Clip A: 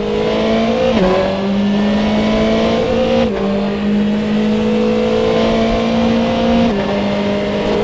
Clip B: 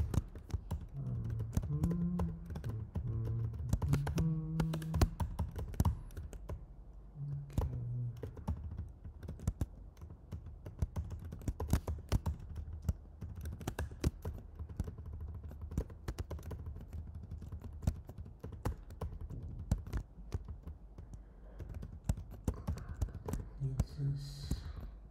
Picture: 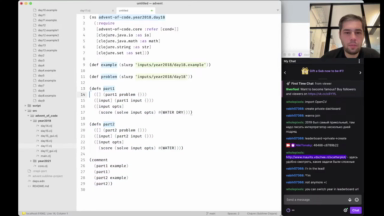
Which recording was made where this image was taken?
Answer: B